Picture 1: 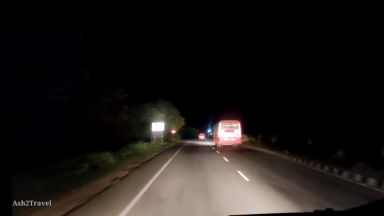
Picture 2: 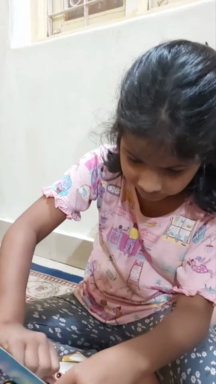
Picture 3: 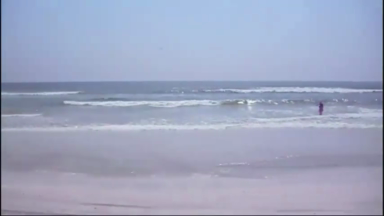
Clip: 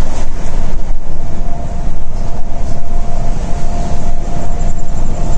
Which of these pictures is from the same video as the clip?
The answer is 1